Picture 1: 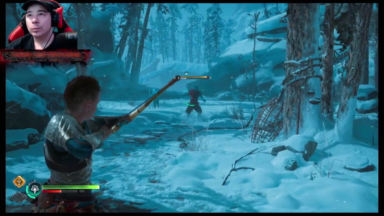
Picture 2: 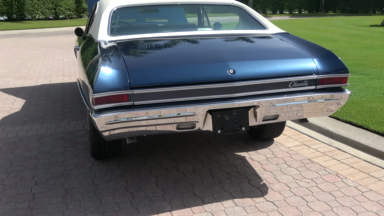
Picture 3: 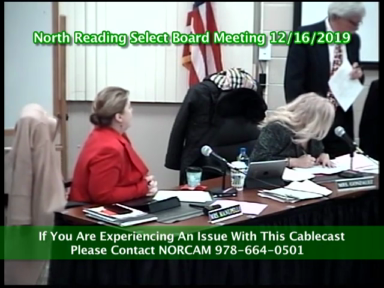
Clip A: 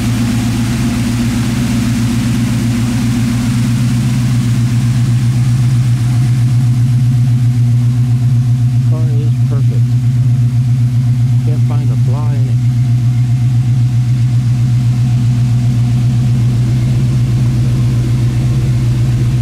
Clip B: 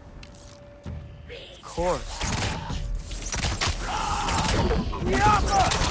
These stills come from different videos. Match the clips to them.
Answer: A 2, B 1